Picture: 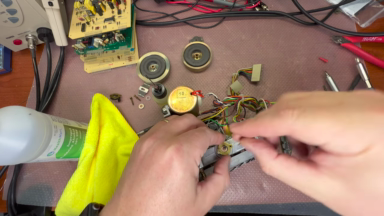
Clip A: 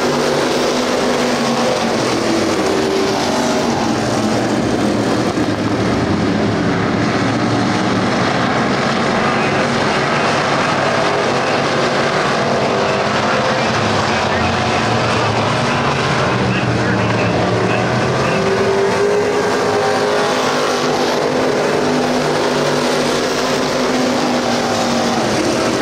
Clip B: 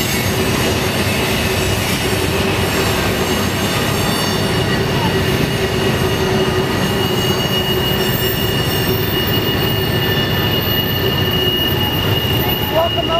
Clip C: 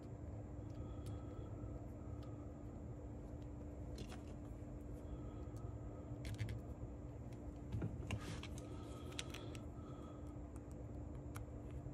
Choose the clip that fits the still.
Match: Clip C